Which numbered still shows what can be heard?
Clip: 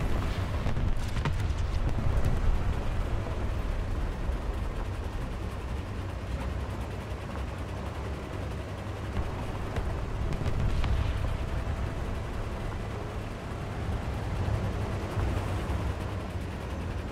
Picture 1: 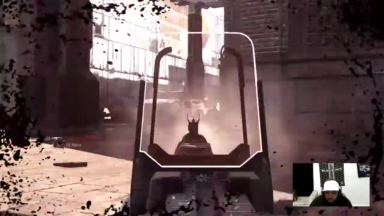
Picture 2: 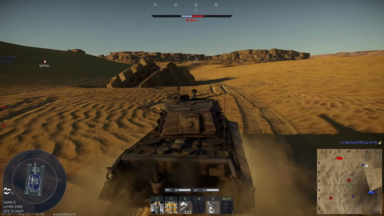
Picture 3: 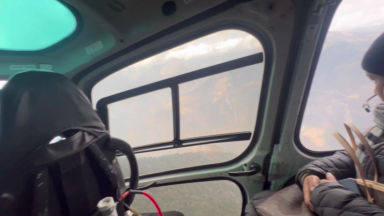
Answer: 2